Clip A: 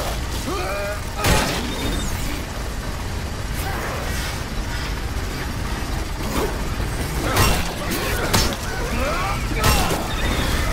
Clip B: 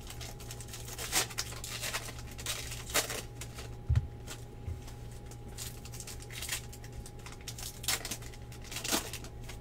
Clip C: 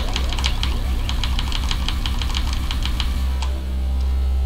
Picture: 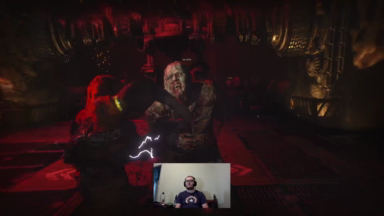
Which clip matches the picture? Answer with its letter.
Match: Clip A